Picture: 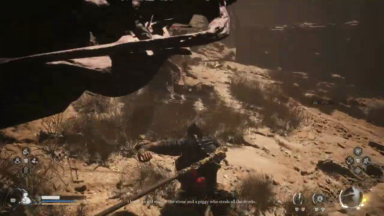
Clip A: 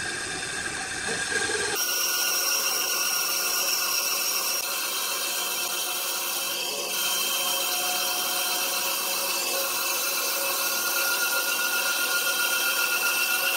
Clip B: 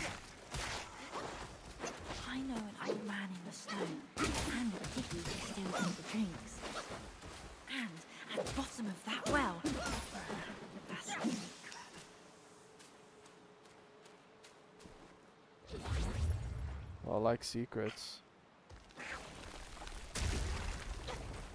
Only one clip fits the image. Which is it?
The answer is B